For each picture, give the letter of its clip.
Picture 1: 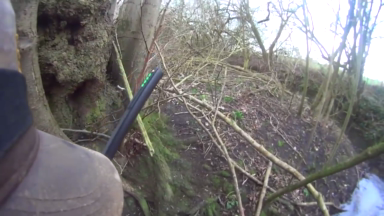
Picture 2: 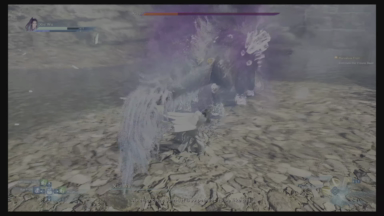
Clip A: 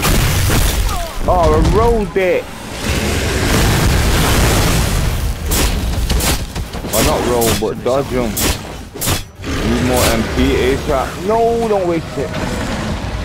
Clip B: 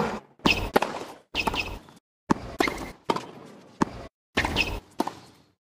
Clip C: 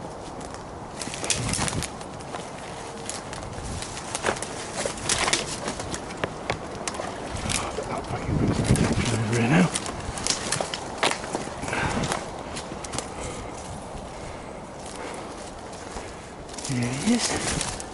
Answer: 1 C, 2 A